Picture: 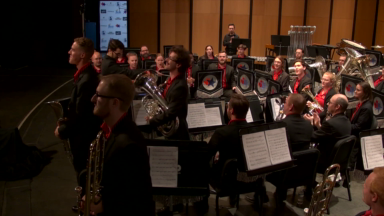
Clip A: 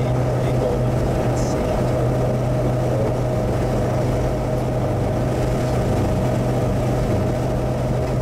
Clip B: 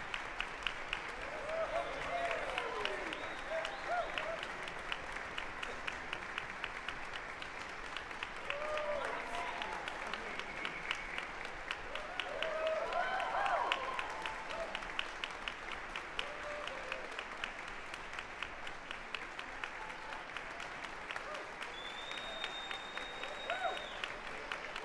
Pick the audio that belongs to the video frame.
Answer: B